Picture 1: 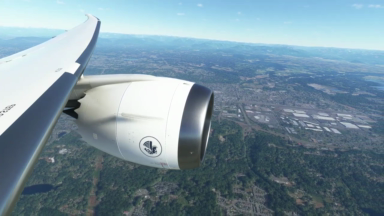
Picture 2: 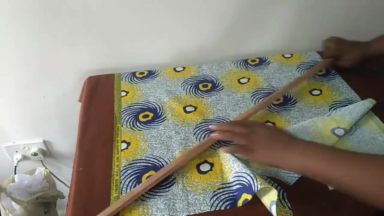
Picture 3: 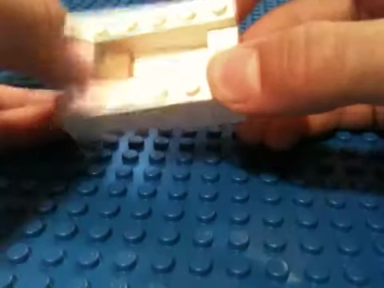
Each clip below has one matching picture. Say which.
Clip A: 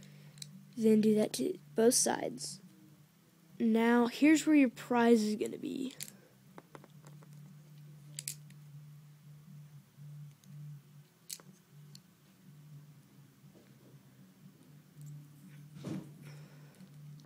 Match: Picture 3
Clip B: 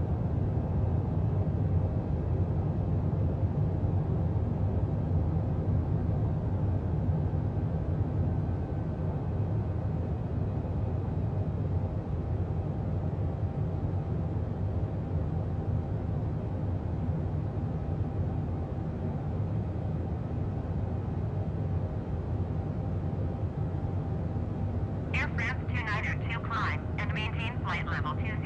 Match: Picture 1